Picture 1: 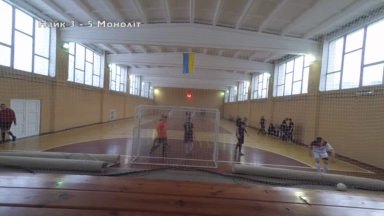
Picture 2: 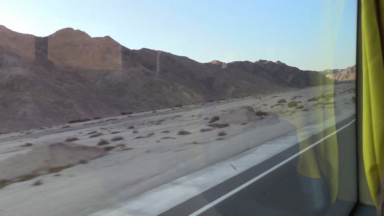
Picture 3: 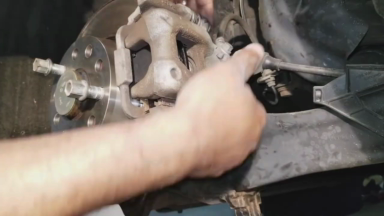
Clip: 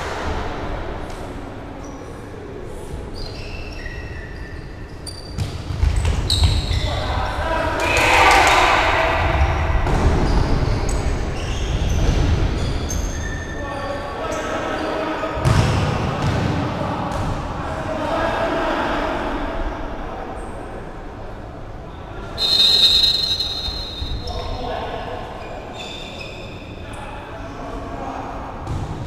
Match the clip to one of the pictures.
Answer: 1